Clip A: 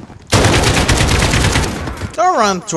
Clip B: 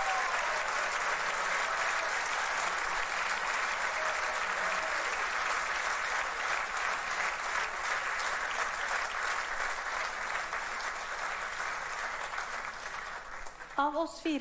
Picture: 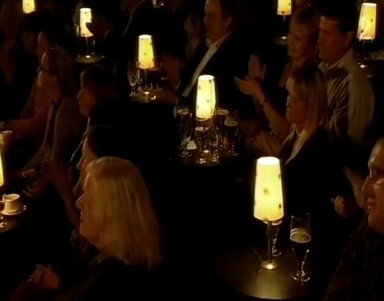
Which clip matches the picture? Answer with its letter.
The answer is B